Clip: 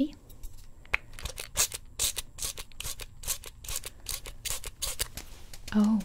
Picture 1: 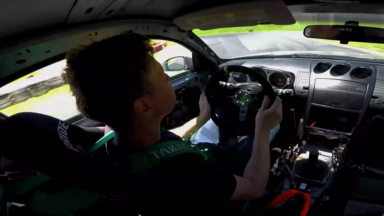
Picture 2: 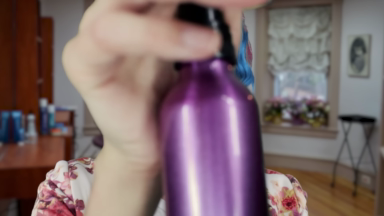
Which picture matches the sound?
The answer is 2